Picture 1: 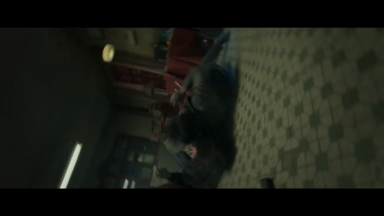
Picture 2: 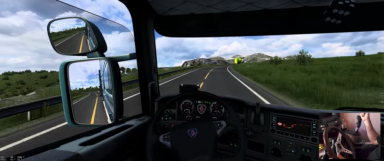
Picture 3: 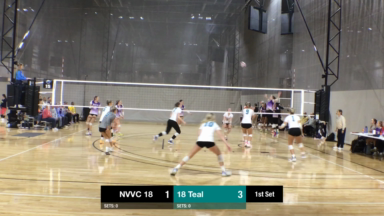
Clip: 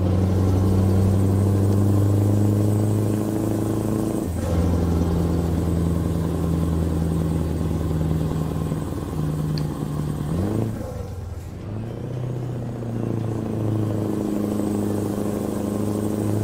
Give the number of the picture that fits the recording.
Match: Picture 2